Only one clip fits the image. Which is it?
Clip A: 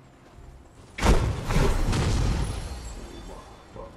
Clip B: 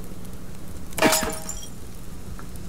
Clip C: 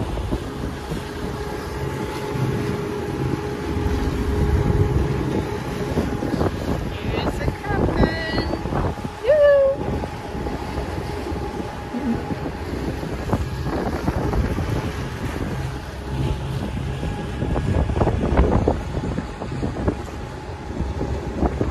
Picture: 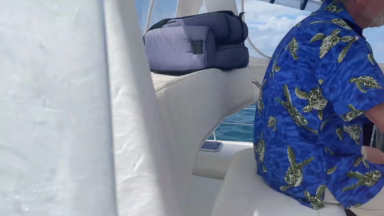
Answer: C